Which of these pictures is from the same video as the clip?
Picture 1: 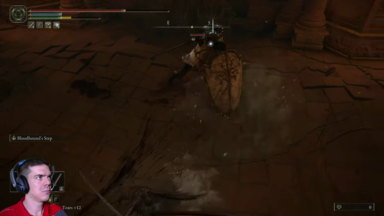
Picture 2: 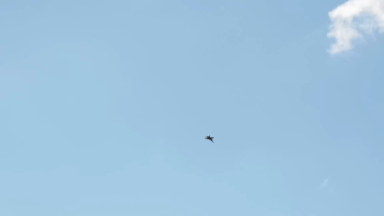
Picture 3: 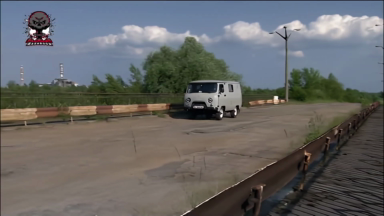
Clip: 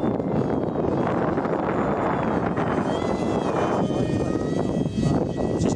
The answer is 2